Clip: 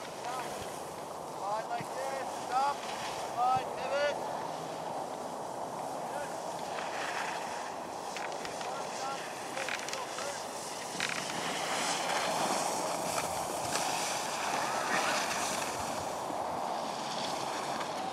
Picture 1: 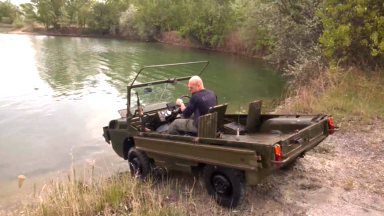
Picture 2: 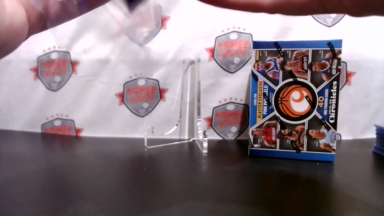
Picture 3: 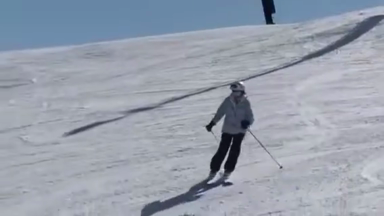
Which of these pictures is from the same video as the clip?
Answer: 3